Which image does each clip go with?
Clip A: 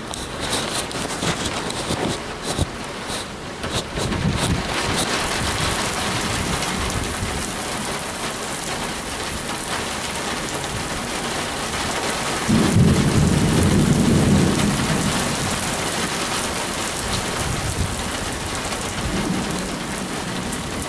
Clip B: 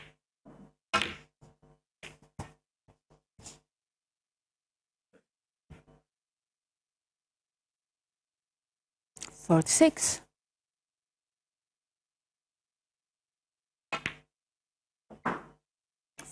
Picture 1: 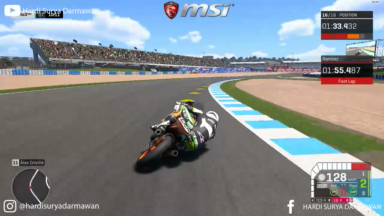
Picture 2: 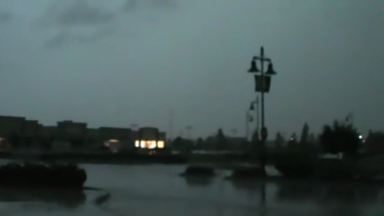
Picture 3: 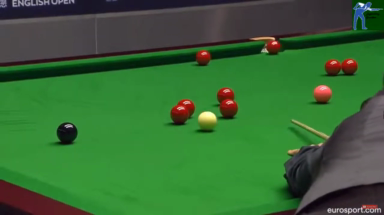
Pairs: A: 2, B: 3